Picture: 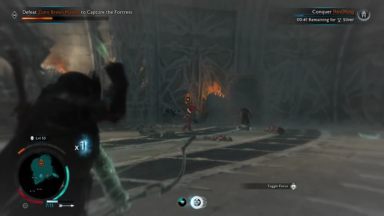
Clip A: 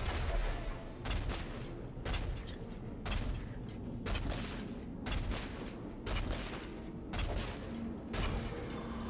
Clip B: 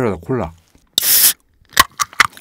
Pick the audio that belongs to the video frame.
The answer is A